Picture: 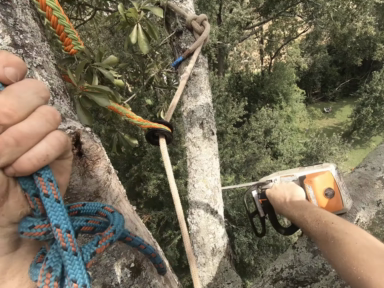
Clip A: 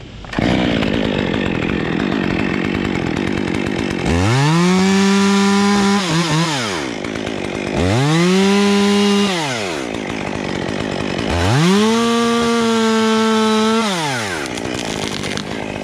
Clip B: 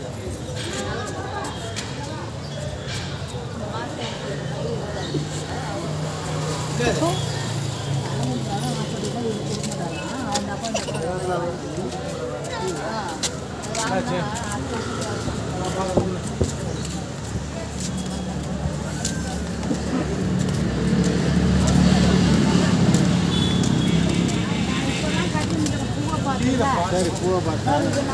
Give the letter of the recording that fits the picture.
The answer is A